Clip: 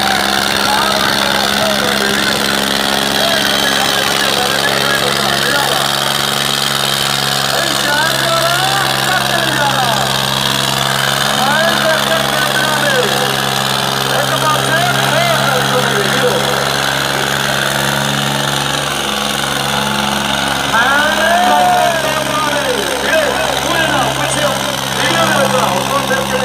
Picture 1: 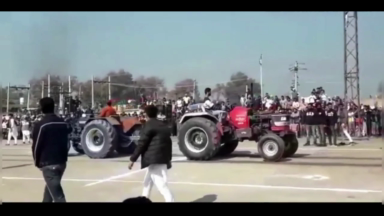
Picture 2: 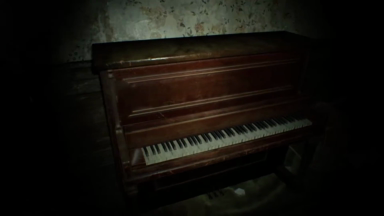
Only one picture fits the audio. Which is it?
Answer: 1